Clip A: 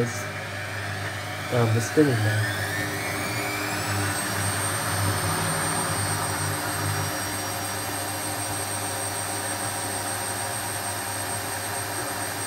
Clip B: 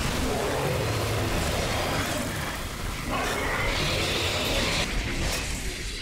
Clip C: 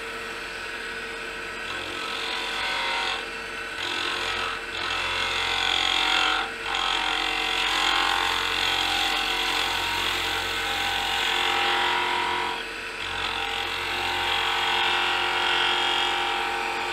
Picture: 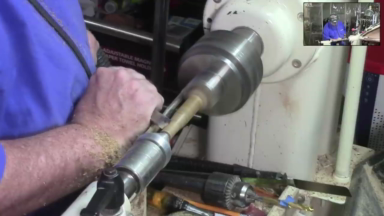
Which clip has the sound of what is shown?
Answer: C